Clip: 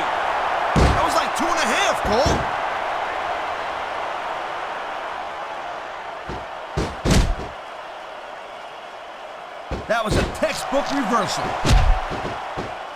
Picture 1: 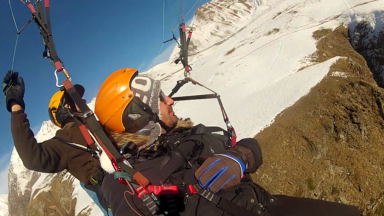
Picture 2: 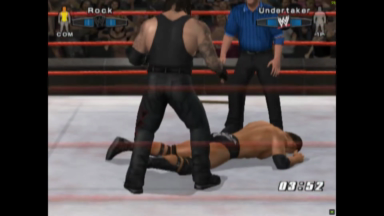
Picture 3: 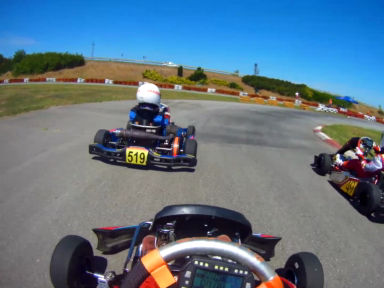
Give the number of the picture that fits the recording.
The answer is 2